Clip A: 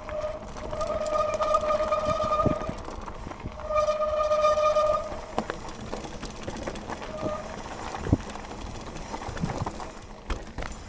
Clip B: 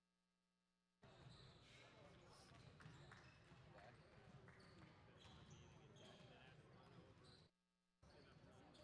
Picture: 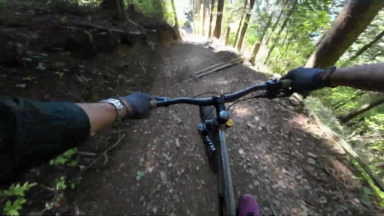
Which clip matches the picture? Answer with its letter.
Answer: A